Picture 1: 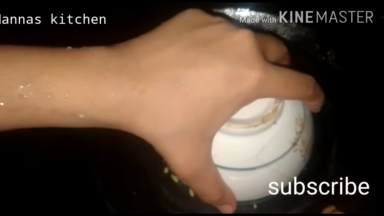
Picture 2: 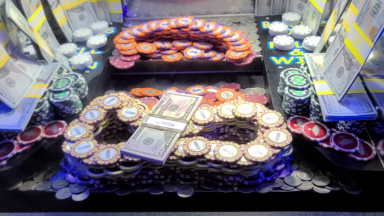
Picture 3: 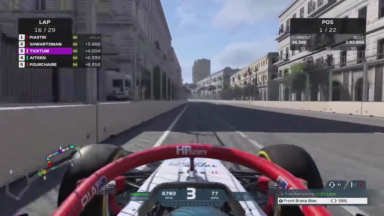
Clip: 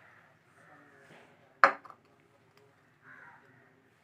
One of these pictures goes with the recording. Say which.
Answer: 1